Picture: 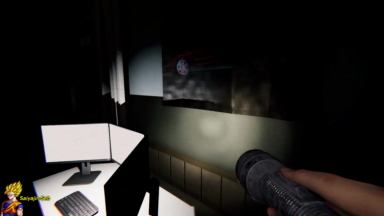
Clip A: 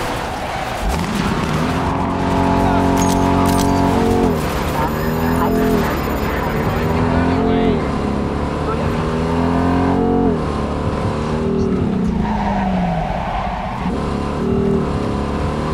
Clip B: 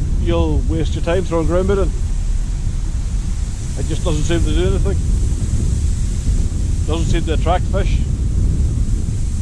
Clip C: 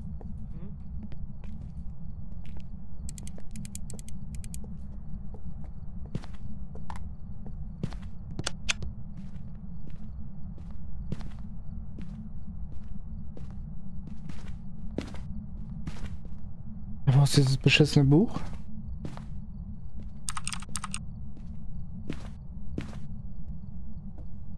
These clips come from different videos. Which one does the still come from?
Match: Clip C